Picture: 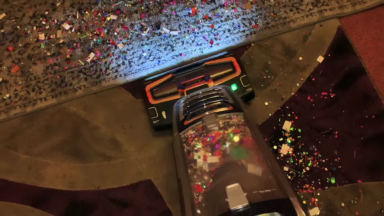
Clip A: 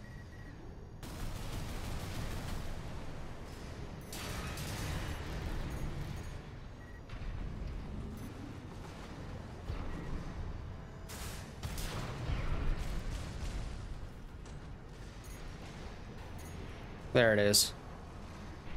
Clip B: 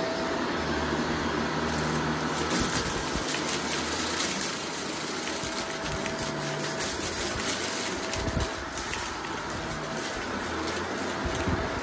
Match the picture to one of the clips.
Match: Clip B